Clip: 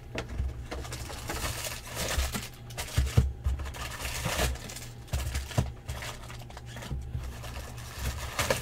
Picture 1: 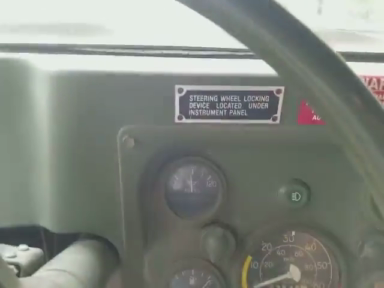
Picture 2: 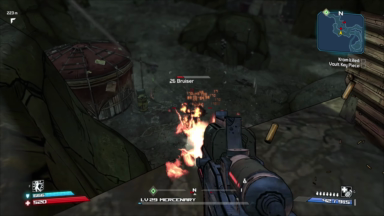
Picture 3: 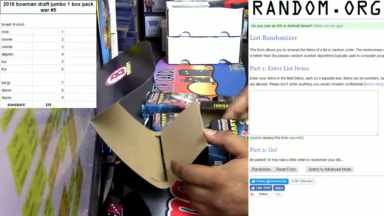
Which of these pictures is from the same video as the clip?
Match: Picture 3